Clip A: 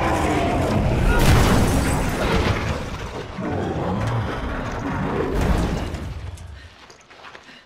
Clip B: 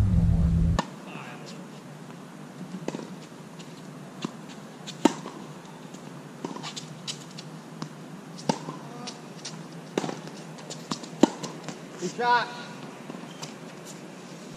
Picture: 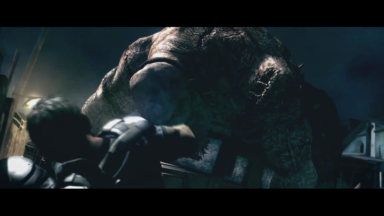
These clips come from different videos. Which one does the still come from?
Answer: A